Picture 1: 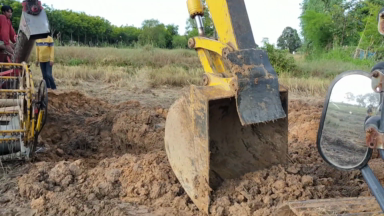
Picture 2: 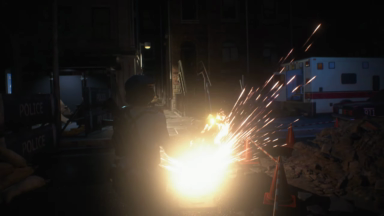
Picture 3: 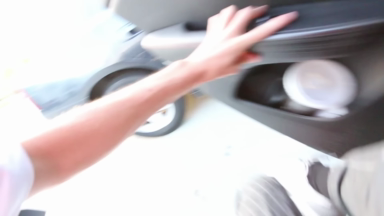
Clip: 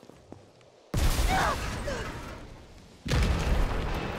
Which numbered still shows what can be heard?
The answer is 2